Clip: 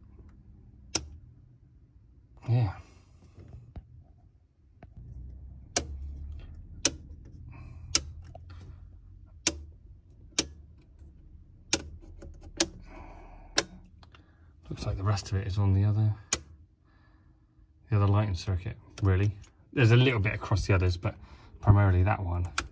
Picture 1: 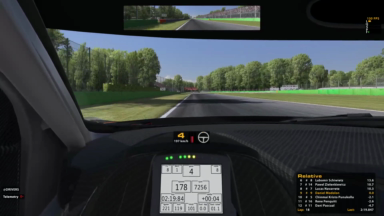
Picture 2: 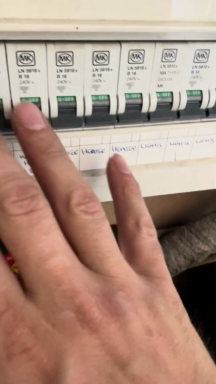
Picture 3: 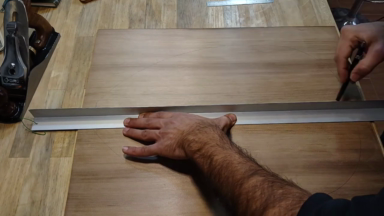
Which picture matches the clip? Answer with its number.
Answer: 2